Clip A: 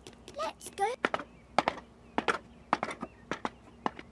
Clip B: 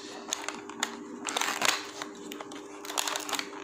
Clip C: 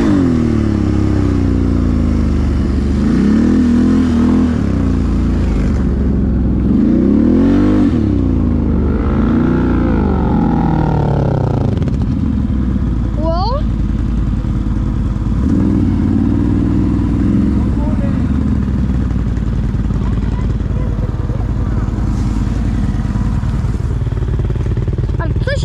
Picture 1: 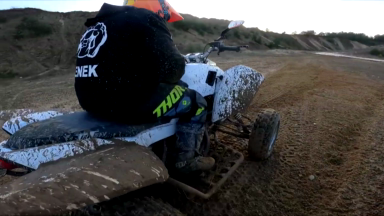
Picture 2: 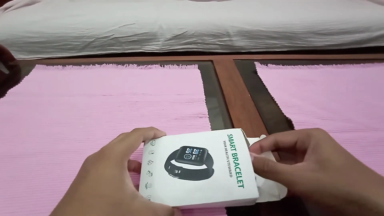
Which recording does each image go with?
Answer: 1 C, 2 B